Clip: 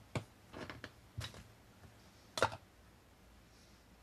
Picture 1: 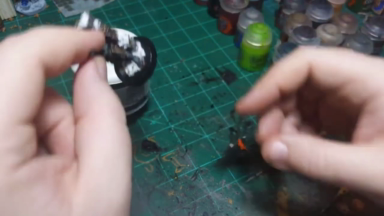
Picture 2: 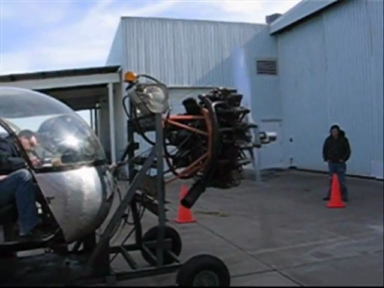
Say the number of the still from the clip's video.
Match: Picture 1